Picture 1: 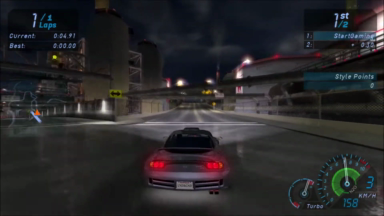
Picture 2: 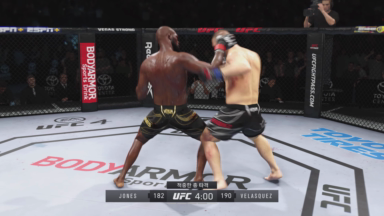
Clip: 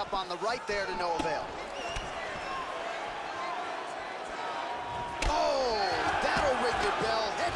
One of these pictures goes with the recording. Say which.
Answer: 2